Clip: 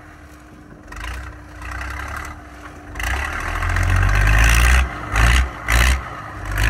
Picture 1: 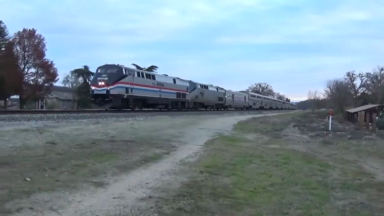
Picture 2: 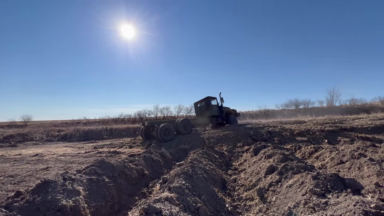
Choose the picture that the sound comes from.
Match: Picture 2